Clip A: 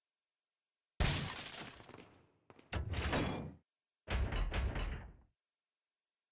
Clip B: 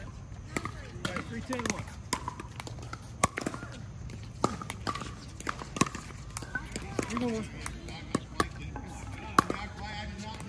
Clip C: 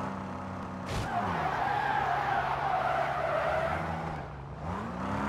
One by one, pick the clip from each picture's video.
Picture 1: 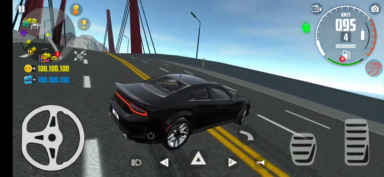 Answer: C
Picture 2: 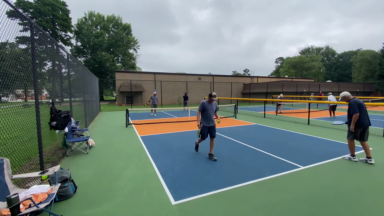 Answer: B